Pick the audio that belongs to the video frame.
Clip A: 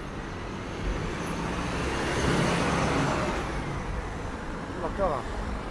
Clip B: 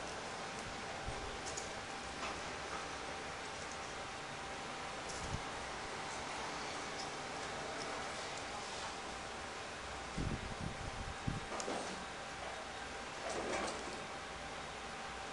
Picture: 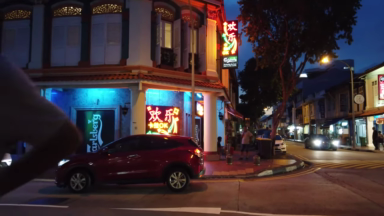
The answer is A